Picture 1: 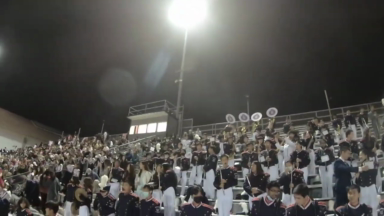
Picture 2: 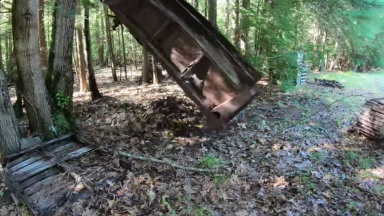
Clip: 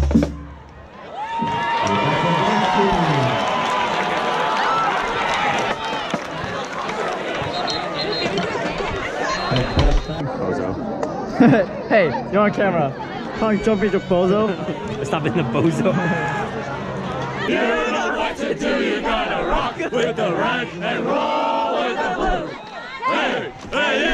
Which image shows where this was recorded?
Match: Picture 1